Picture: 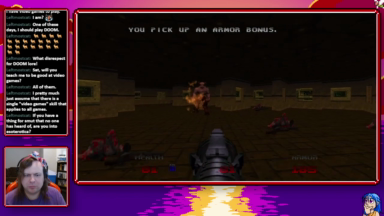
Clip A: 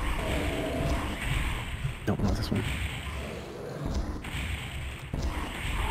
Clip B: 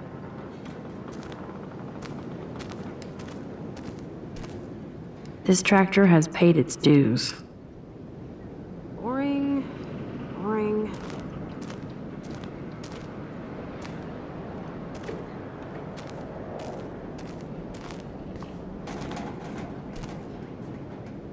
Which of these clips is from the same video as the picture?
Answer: A